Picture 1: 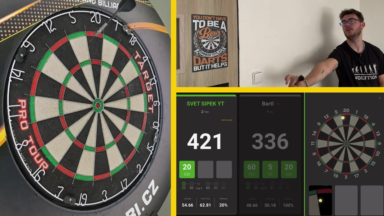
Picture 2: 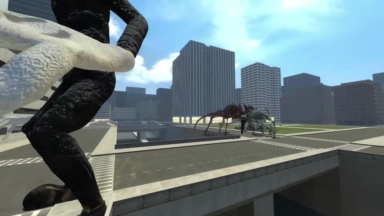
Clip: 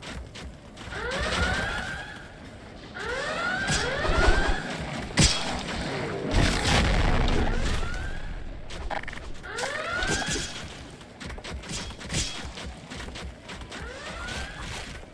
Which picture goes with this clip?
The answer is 2